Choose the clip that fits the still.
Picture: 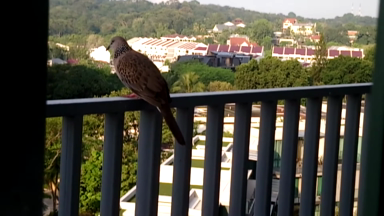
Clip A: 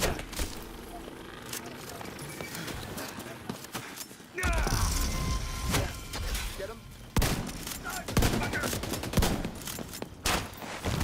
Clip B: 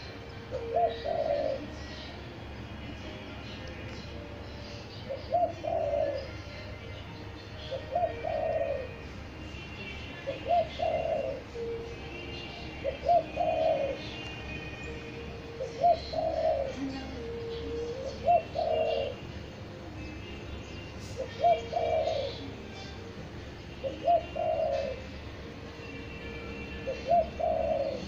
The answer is B